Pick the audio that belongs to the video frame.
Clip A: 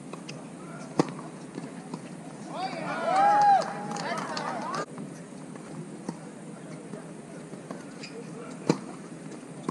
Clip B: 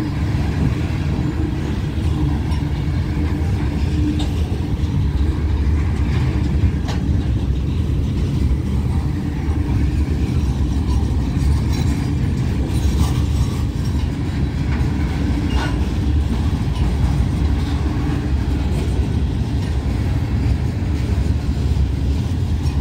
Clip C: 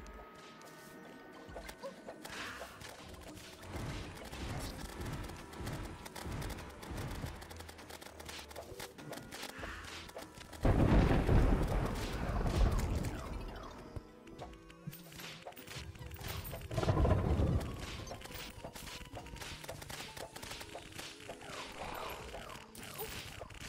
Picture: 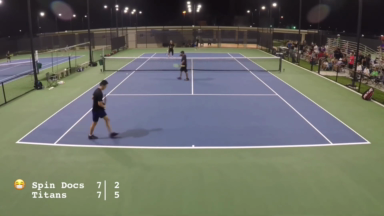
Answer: A